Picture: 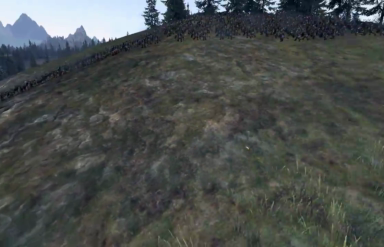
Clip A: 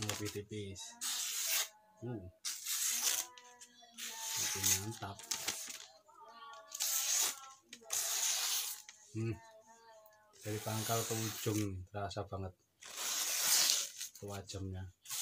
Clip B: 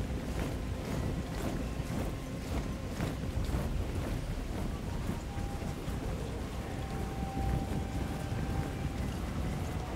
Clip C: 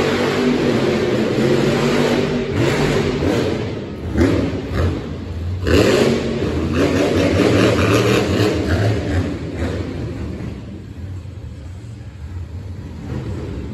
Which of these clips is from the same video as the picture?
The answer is B